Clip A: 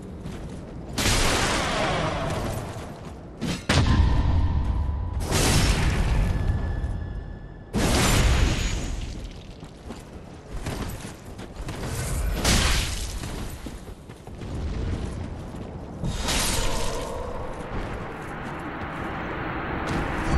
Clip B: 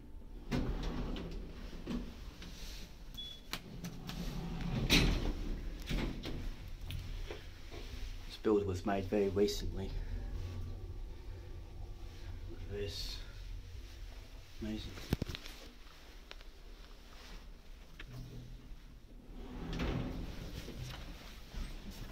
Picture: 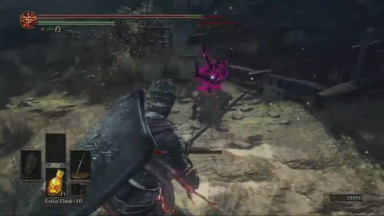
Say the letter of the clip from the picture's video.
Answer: A